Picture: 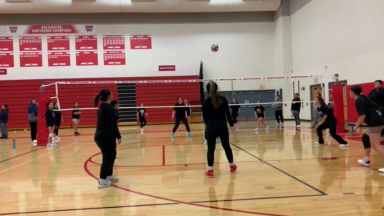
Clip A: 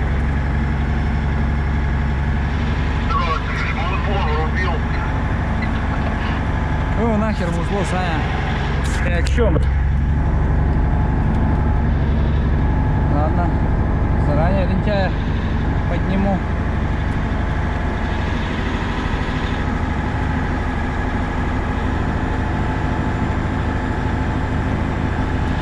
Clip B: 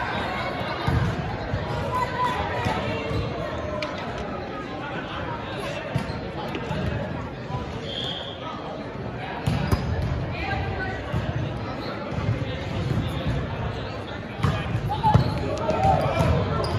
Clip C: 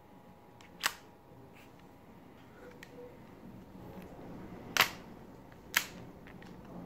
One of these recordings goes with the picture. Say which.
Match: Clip B